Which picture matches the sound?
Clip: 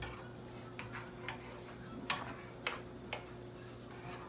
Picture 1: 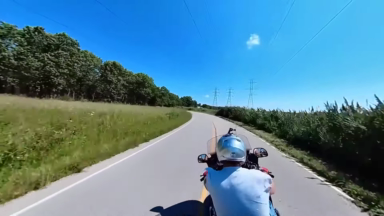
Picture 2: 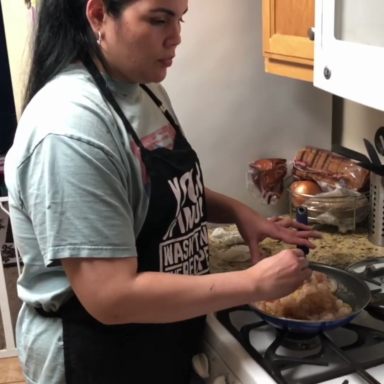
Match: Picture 2